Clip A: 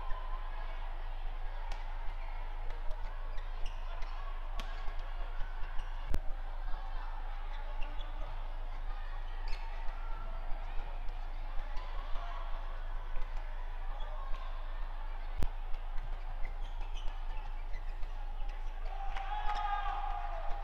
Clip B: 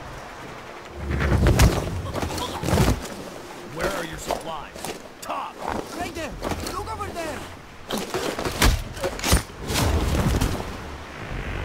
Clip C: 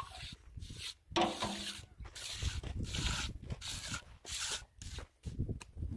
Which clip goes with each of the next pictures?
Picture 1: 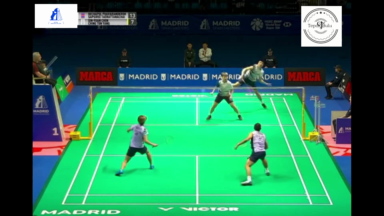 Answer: A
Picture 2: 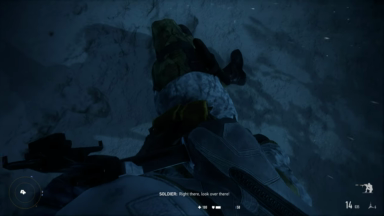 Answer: B